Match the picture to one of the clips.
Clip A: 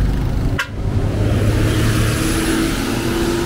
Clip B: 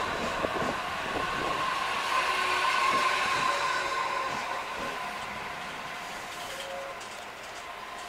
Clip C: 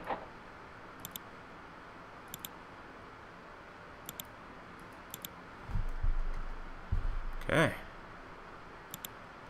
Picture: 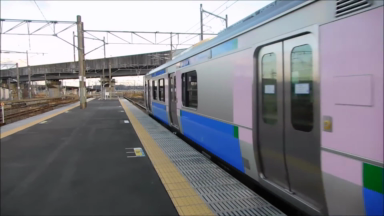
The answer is B